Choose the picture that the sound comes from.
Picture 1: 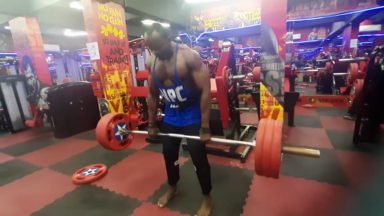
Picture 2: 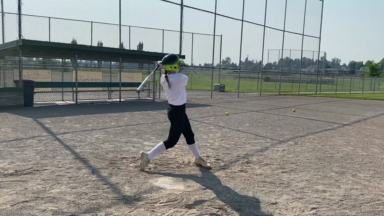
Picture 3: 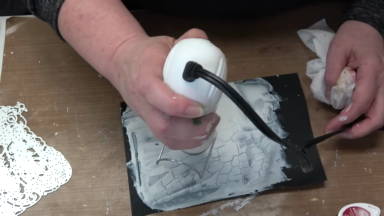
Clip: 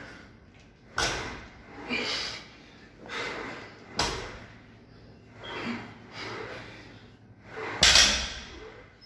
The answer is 1